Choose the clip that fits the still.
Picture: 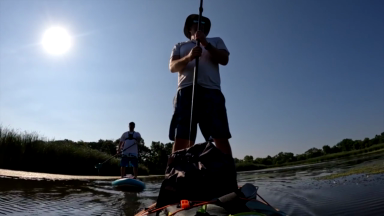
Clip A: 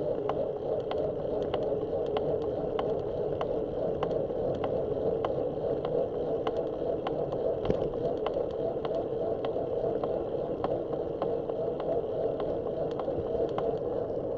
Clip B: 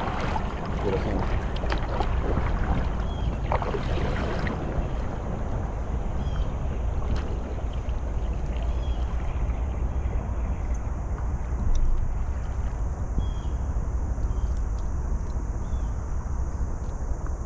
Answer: B